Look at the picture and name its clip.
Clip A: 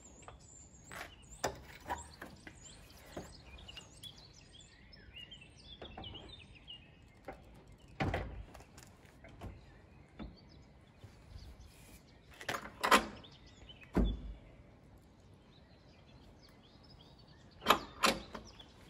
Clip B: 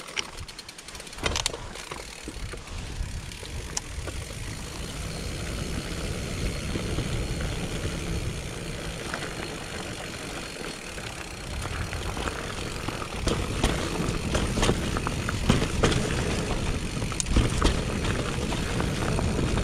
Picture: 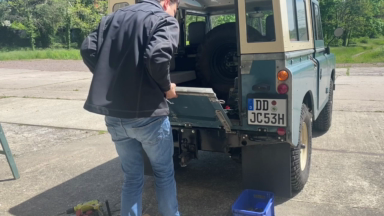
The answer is A